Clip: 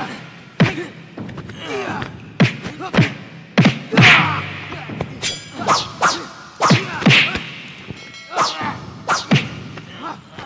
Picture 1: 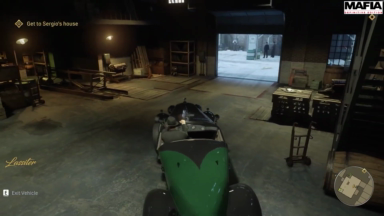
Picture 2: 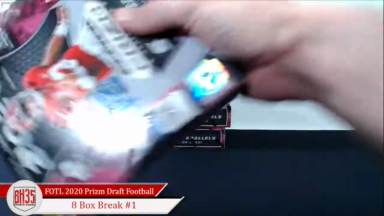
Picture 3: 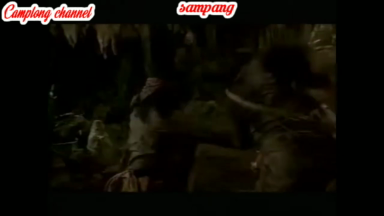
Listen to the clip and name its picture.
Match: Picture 3